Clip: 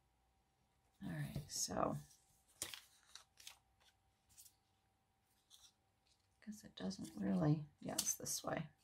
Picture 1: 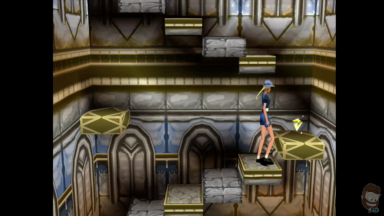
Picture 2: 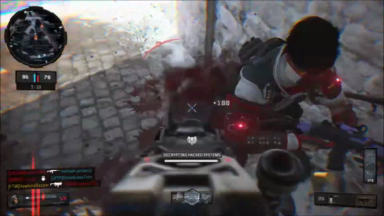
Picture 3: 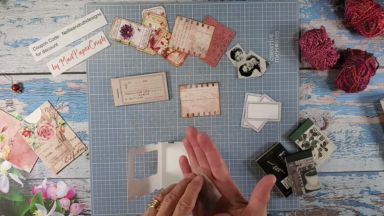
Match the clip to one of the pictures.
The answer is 3